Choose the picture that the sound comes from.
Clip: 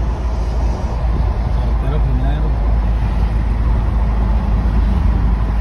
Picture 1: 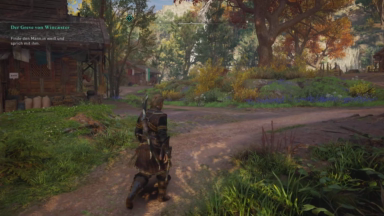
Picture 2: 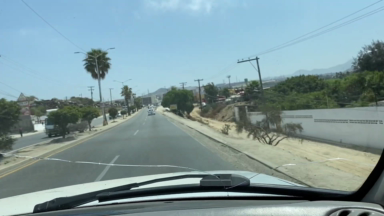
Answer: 2